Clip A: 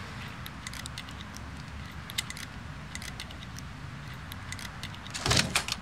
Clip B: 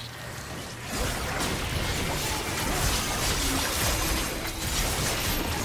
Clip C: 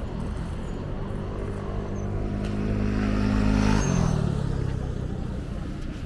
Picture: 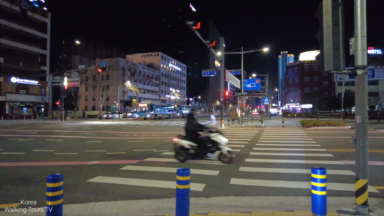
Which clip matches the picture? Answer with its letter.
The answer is C